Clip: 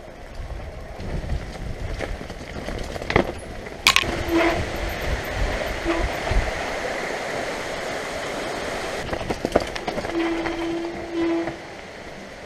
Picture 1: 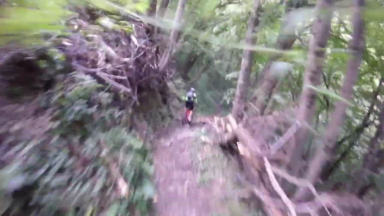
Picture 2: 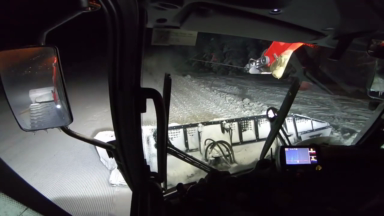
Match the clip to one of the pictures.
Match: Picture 1